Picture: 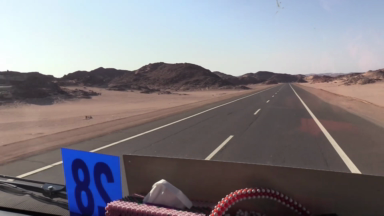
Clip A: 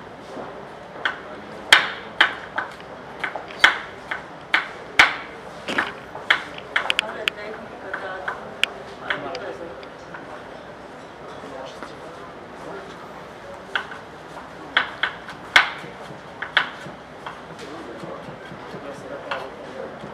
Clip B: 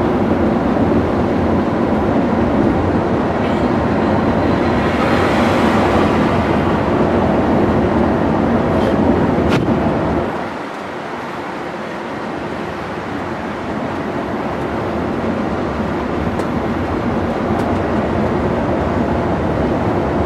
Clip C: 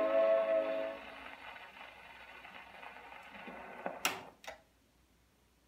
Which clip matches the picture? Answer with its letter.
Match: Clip B